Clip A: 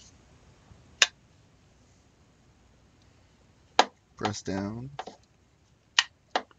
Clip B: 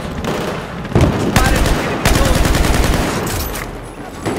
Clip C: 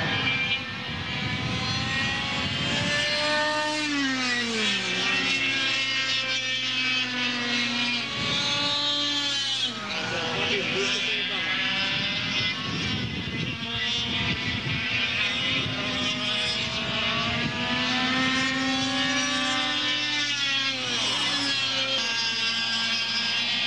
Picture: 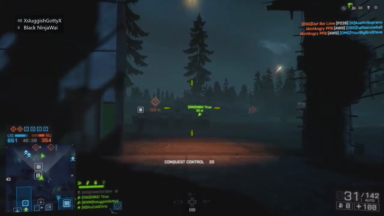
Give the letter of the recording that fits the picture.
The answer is B